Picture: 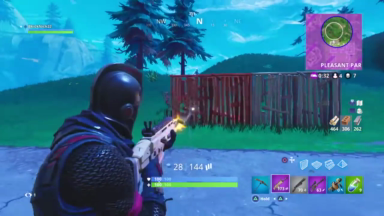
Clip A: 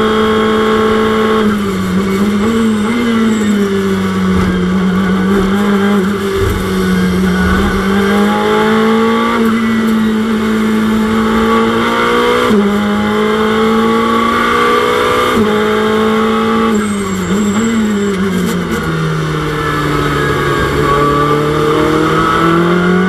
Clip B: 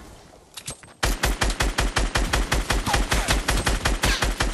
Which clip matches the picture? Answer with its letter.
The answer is B